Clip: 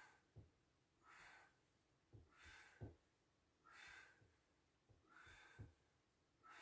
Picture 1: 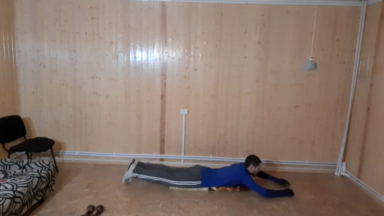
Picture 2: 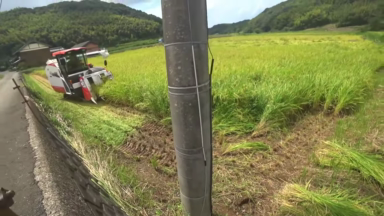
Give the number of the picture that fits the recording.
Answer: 1